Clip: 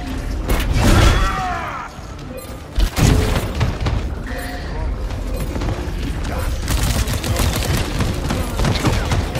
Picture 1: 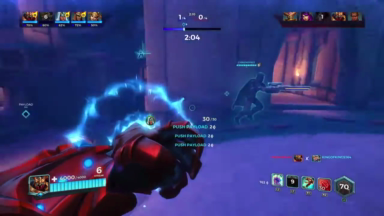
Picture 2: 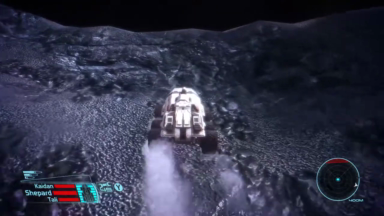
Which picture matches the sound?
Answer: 1